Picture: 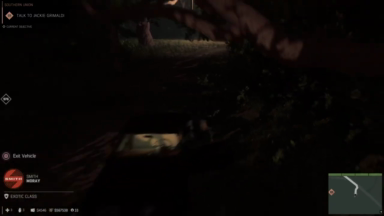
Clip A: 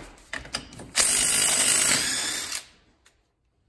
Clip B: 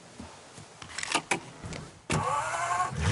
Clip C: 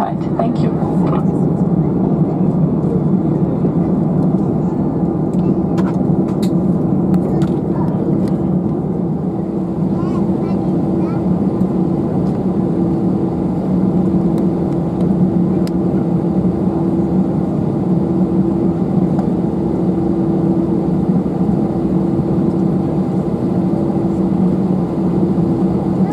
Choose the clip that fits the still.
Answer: B